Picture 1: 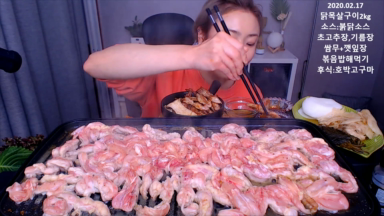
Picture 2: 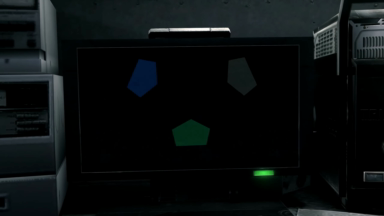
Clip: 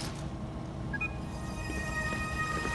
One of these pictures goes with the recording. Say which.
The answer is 2